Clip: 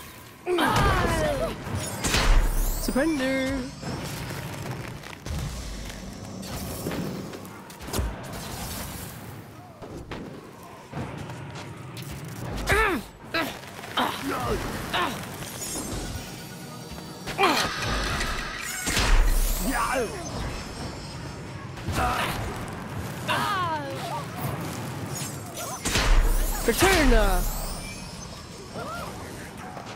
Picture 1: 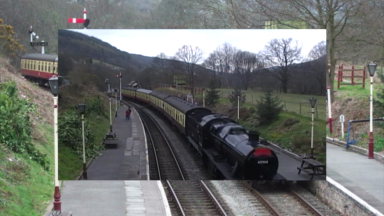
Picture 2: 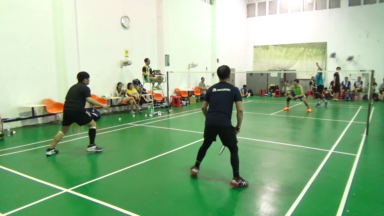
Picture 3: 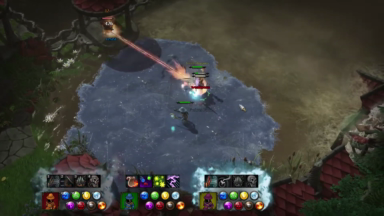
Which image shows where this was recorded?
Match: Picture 3